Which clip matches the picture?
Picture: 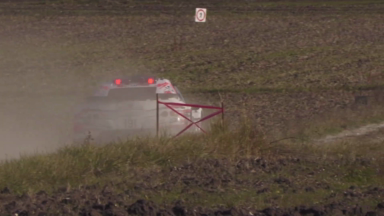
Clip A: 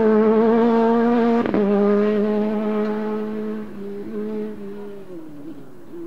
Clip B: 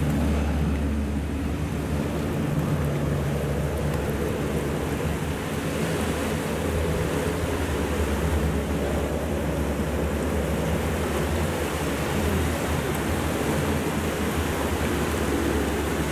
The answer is A